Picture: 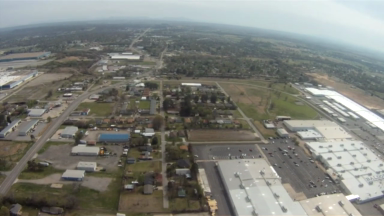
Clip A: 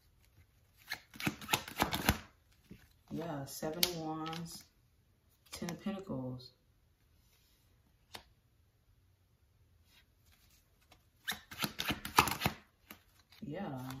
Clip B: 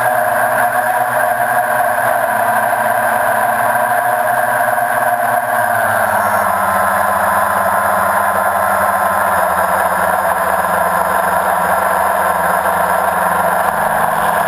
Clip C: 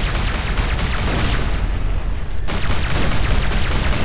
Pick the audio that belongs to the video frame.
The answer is B